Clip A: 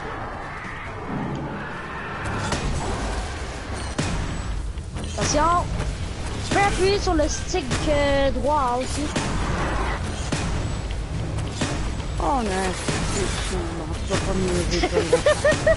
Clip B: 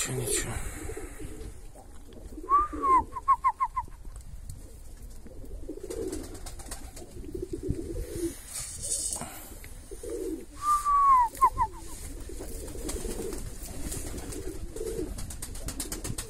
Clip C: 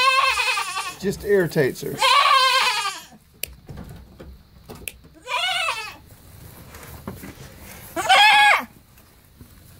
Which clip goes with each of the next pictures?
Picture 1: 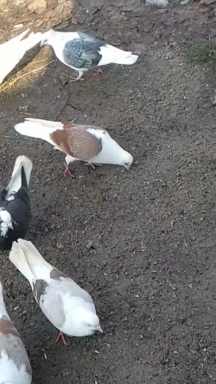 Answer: B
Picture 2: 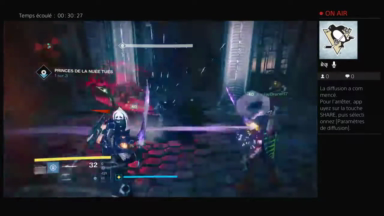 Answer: A